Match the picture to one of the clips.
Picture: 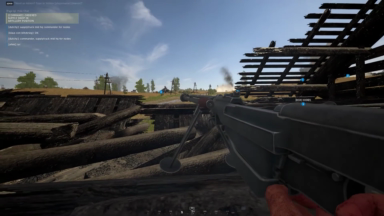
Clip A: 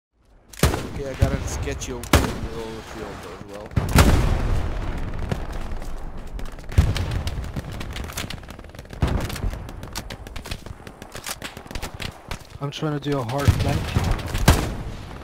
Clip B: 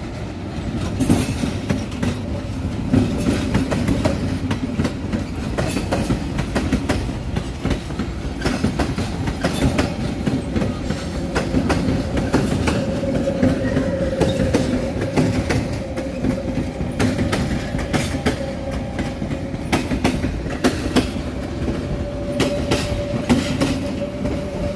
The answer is A